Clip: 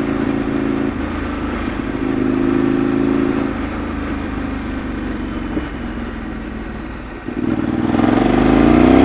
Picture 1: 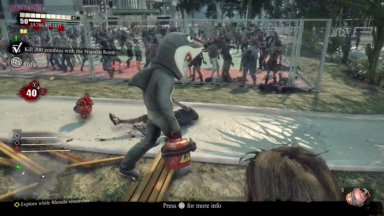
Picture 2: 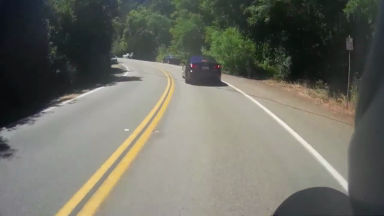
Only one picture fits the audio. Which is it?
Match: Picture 2